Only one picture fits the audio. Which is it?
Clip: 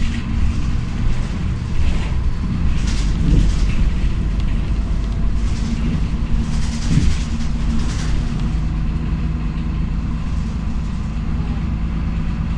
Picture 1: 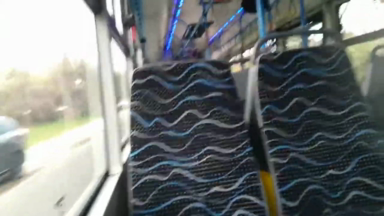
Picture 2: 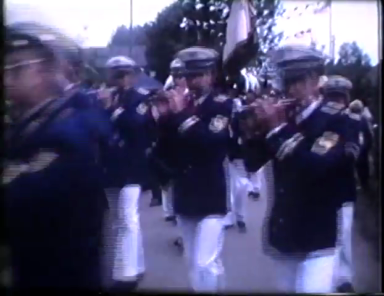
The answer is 1